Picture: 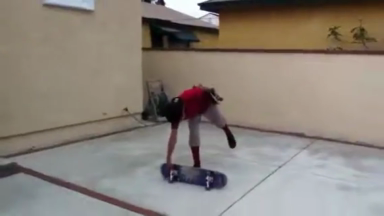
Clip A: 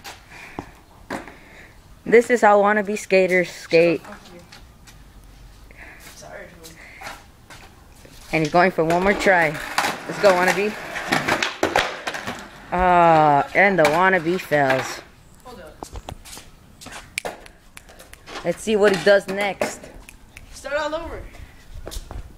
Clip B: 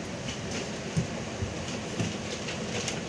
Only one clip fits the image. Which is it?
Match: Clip A